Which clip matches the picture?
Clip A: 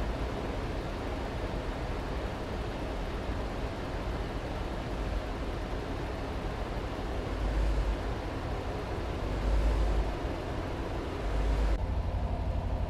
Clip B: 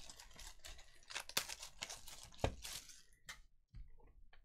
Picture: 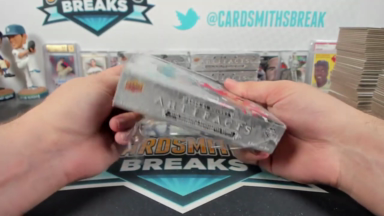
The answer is B